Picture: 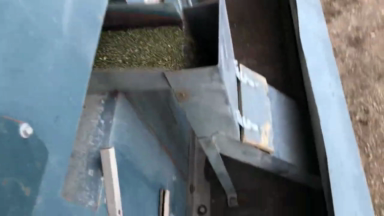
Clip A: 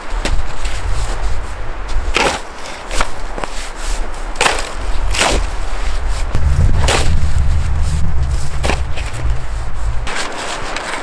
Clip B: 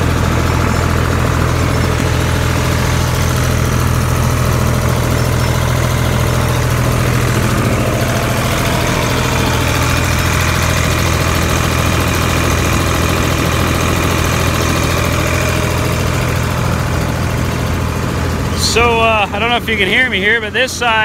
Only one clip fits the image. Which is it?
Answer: B